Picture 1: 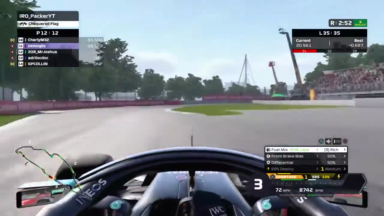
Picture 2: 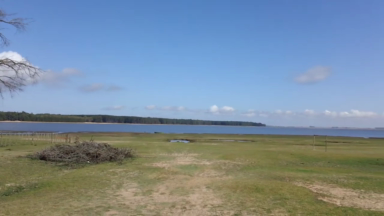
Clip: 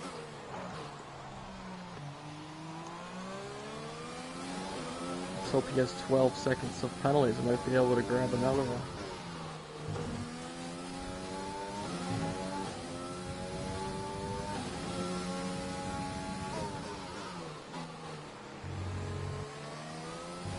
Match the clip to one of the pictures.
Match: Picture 1